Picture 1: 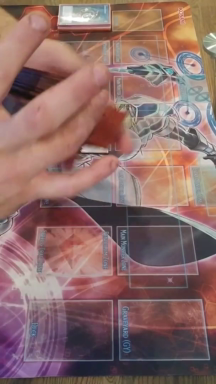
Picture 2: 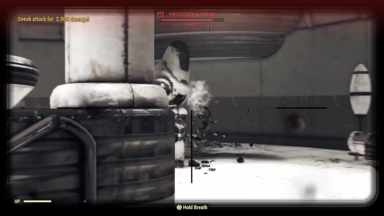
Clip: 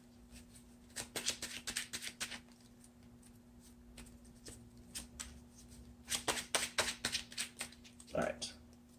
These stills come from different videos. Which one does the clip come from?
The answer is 1